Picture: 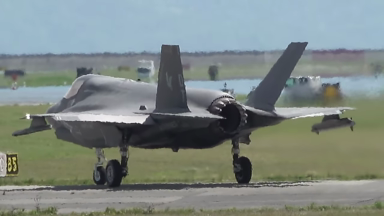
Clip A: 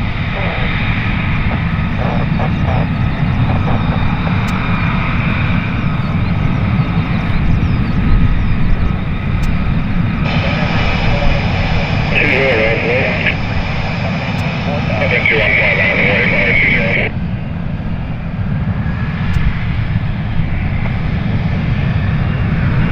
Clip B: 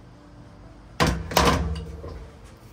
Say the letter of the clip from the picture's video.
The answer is A